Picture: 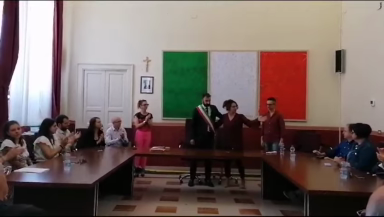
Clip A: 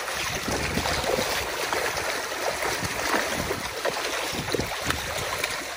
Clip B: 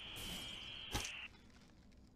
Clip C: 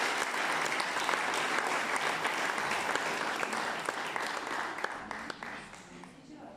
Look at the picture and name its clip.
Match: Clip C